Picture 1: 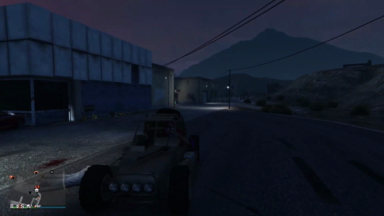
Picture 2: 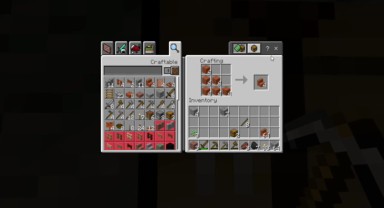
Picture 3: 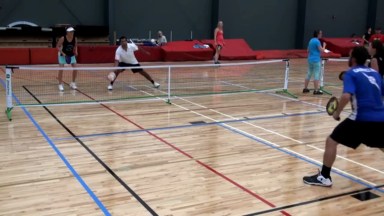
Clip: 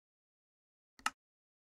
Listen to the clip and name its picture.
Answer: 2